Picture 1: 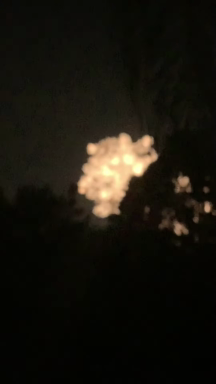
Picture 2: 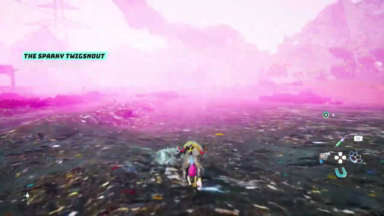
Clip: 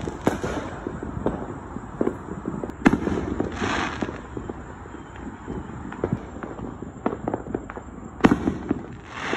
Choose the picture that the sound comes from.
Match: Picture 1